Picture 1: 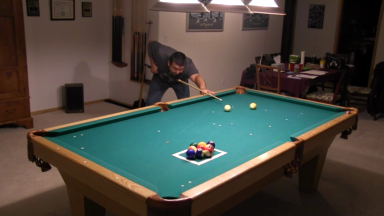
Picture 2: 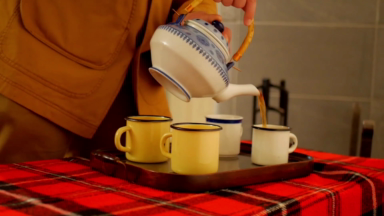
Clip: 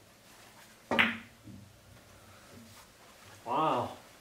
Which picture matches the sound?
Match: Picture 1